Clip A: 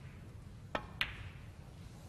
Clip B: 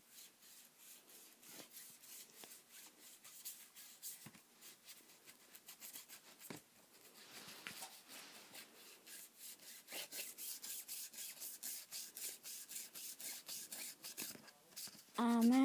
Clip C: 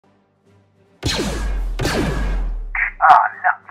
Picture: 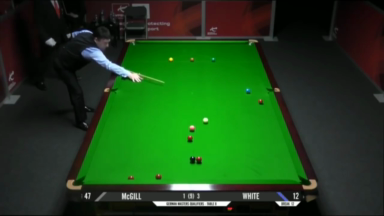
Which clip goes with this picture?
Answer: A